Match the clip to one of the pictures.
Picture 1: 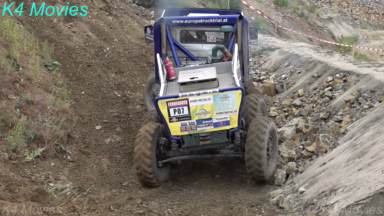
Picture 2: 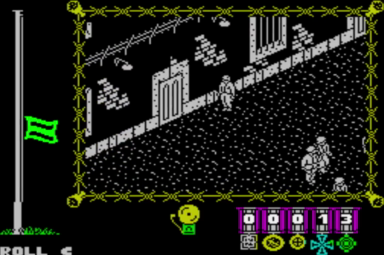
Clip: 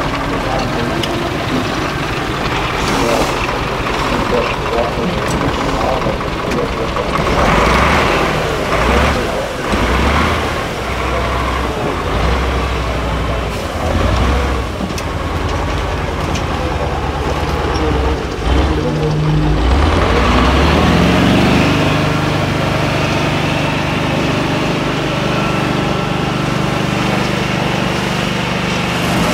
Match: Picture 1